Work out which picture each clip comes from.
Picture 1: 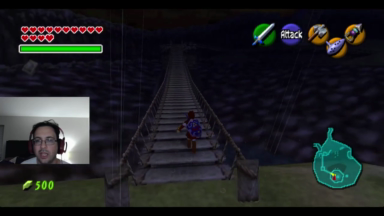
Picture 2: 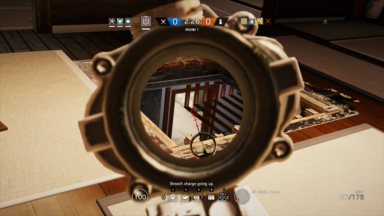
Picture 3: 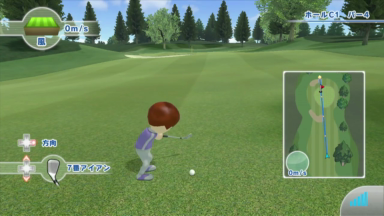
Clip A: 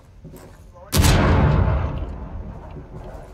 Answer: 2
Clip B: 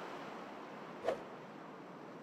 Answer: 3